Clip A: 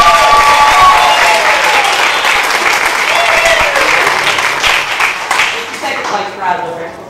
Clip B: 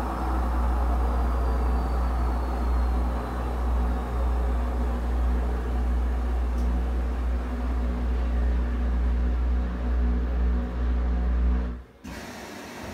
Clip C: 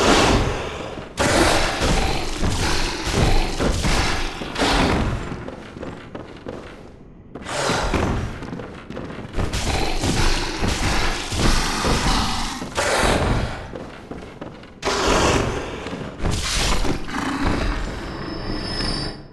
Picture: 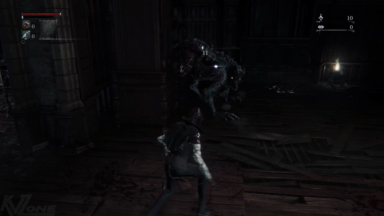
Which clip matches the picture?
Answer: C